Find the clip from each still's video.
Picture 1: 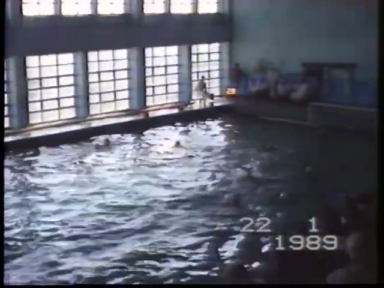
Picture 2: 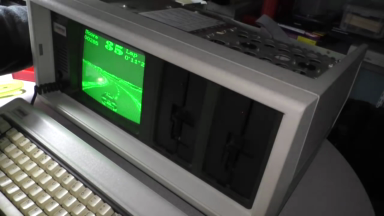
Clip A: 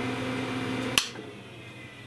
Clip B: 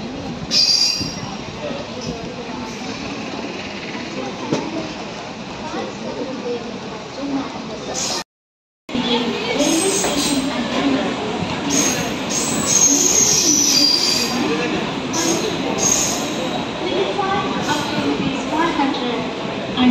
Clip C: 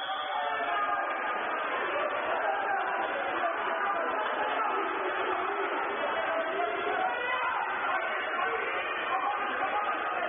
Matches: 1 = C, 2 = A